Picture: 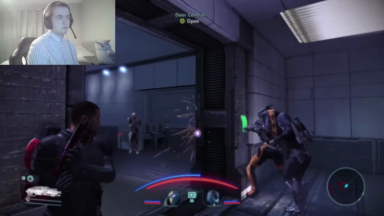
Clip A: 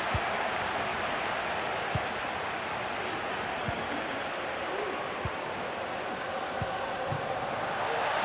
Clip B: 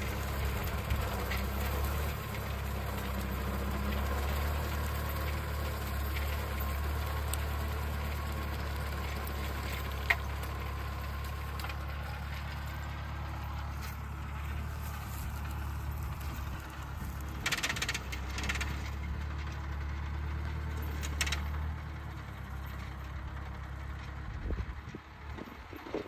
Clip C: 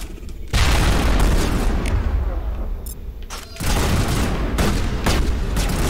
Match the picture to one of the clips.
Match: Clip C